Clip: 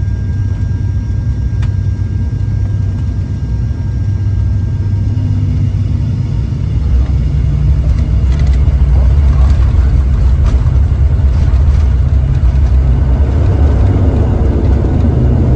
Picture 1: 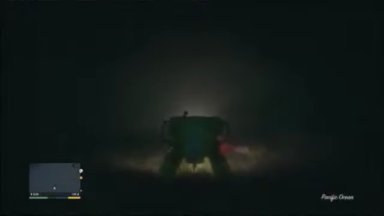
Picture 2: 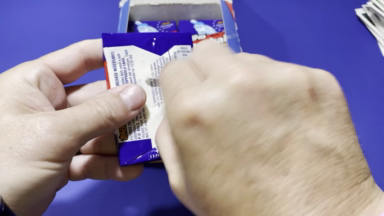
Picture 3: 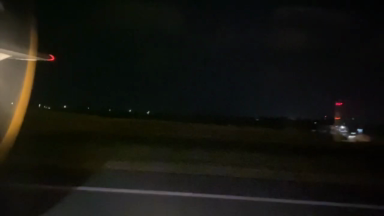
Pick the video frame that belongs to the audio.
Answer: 3